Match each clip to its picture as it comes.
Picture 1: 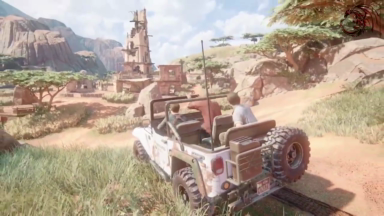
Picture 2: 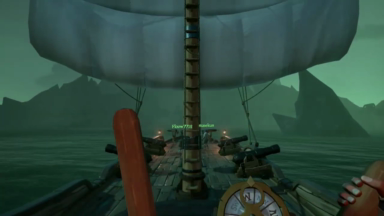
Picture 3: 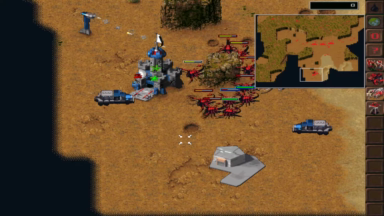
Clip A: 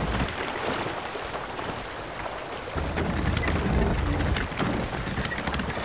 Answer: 2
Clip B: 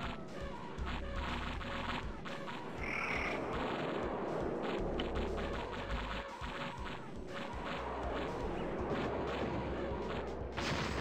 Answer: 3